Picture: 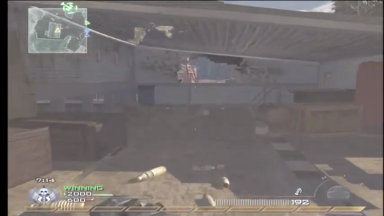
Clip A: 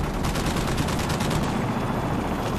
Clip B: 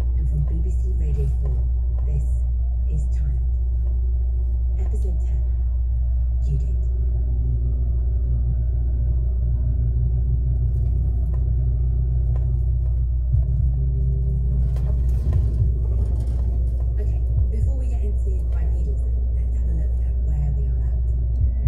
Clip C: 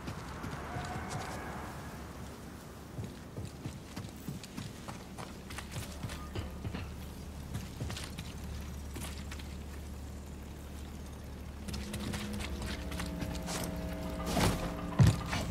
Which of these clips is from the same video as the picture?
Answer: A